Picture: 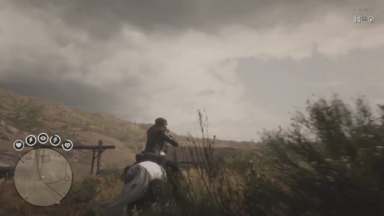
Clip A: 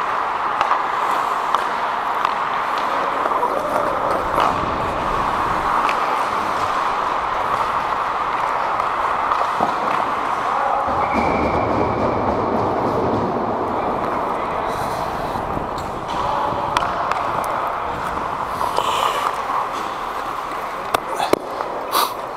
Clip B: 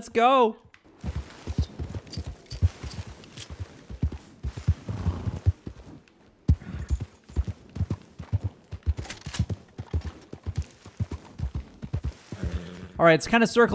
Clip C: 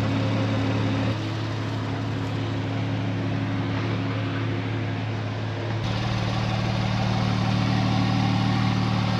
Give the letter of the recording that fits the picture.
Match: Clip B